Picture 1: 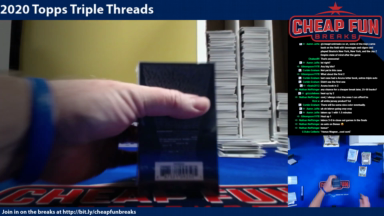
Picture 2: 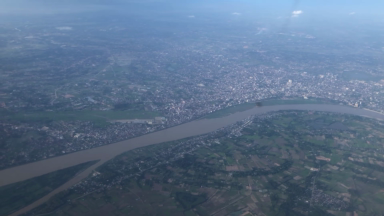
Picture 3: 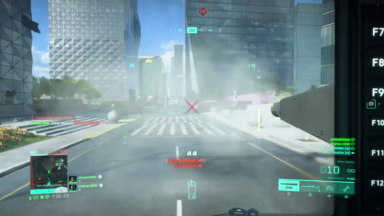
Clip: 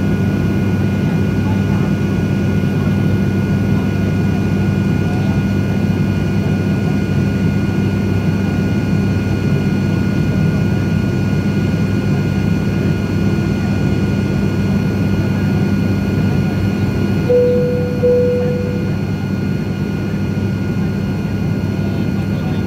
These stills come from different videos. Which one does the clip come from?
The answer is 2